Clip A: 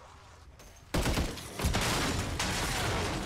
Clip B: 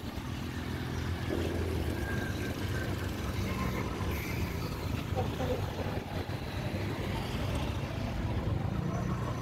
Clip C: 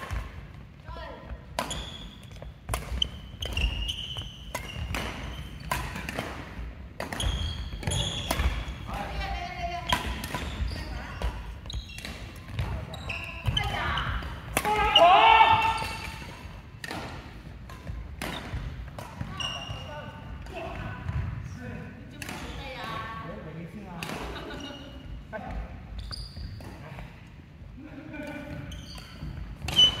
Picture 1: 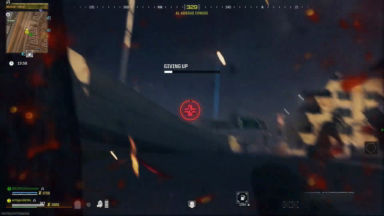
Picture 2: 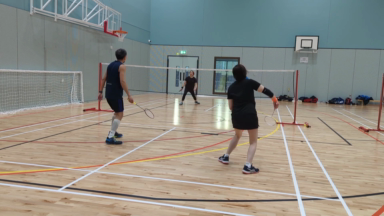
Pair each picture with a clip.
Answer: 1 A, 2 C